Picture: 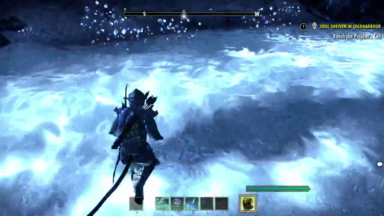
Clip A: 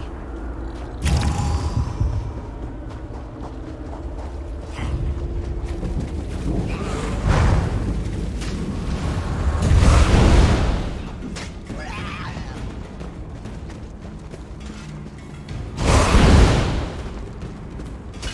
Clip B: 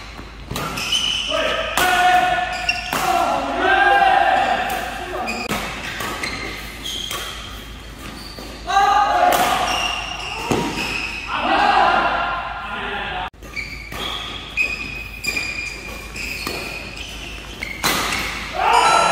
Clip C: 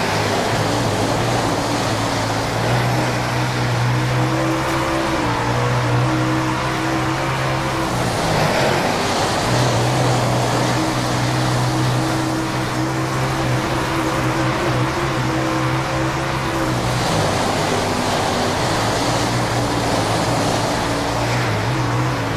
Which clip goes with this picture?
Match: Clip A